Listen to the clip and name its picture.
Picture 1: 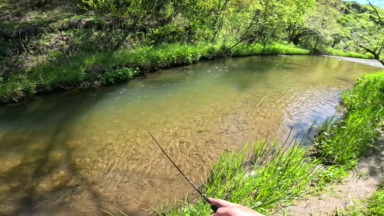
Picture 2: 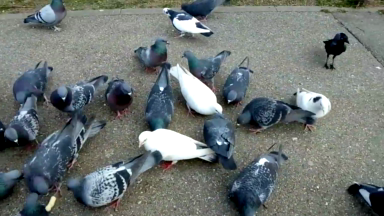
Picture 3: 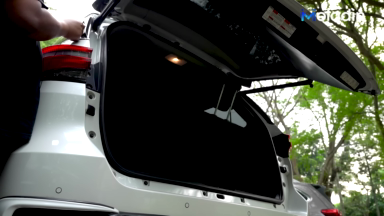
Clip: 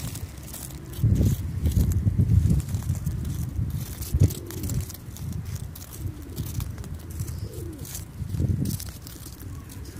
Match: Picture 2